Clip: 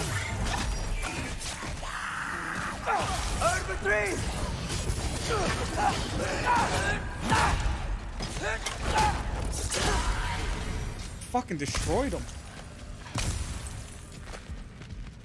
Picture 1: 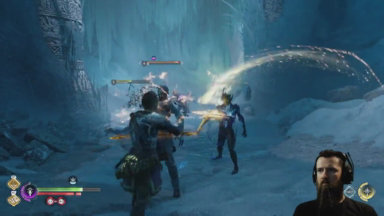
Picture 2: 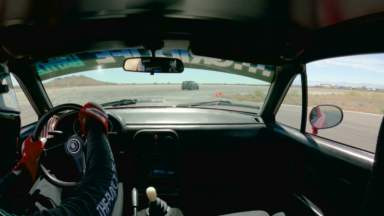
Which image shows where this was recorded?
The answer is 1